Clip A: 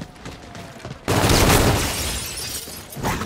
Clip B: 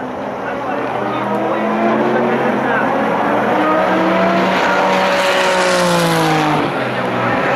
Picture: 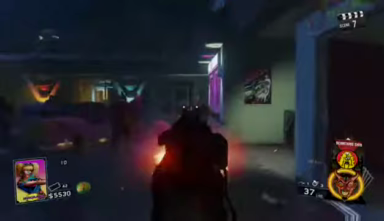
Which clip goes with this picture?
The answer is A